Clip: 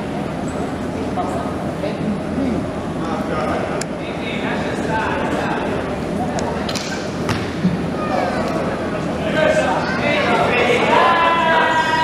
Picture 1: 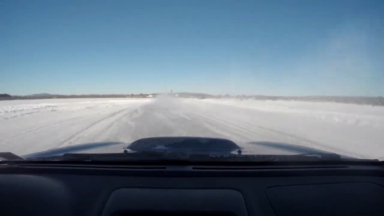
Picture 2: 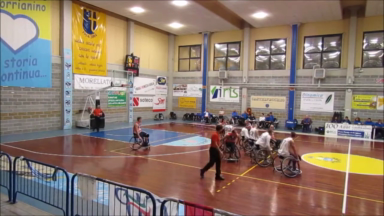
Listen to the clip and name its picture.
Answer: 2